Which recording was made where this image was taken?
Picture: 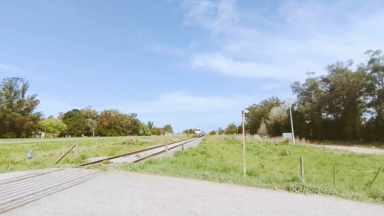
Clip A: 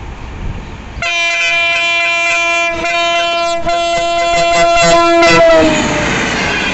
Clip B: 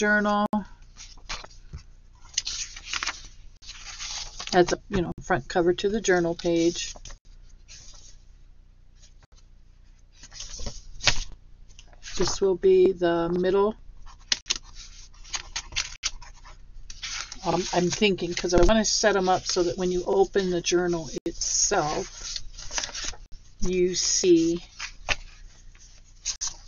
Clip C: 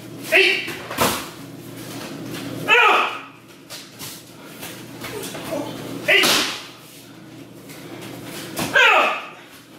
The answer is A